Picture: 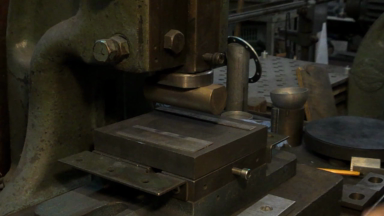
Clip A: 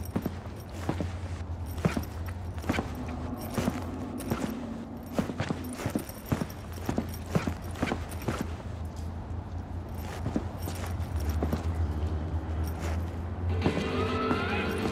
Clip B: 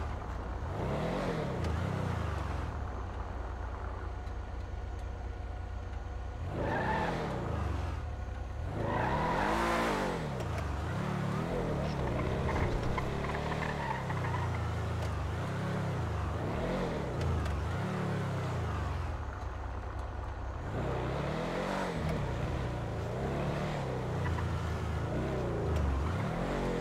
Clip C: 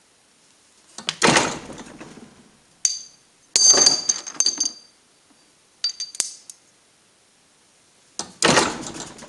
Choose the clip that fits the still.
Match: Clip C